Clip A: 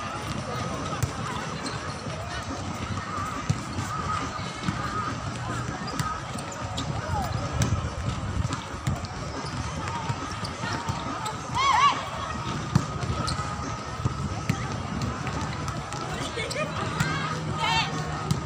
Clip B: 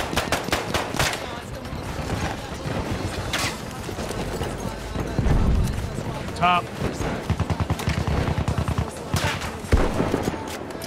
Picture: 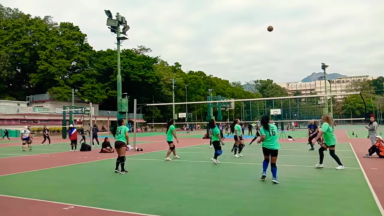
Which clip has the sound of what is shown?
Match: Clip A